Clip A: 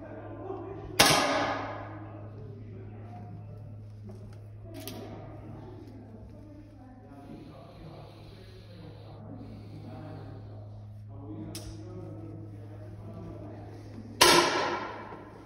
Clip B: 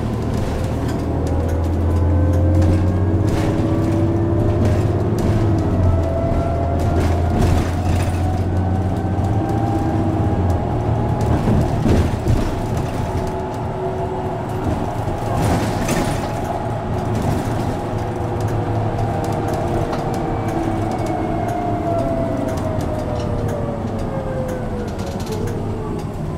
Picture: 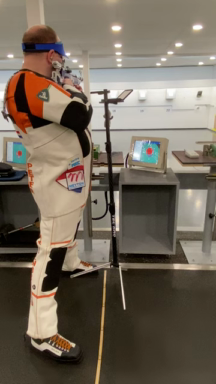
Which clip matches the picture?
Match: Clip A